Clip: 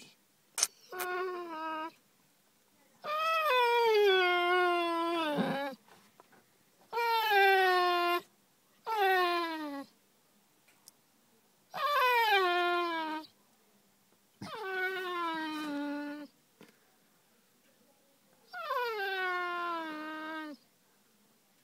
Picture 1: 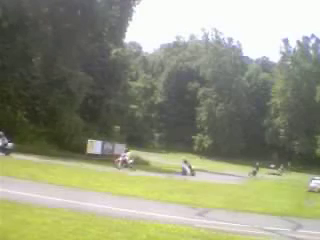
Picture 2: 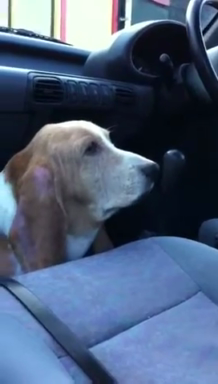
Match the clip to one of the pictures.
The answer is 2